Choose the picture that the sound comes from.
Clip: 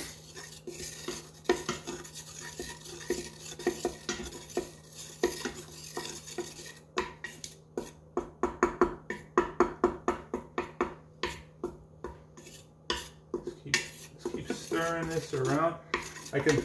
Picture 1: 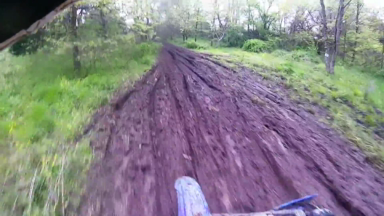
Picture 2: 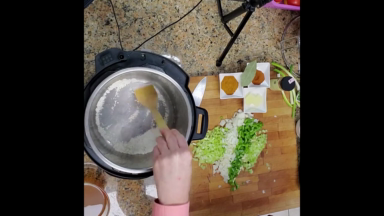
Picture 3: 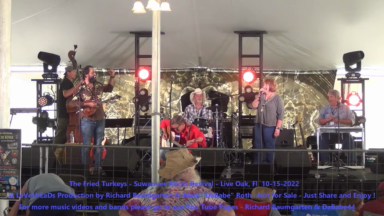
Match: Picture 2